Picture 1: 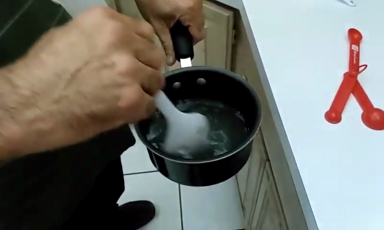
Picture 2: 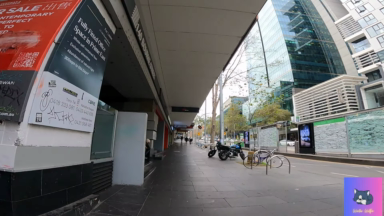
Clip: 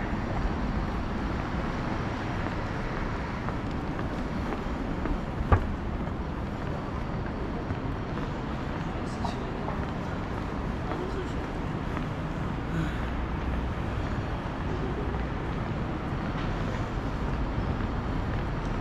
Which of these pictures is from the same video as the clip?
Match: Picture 2